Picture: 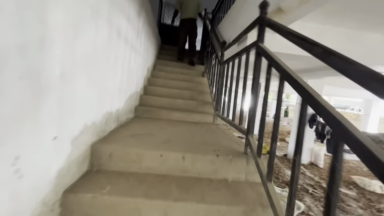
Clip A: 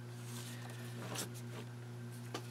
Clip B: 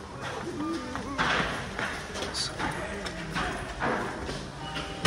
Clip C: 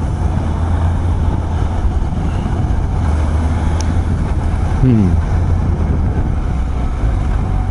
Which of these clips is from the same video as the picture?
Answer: B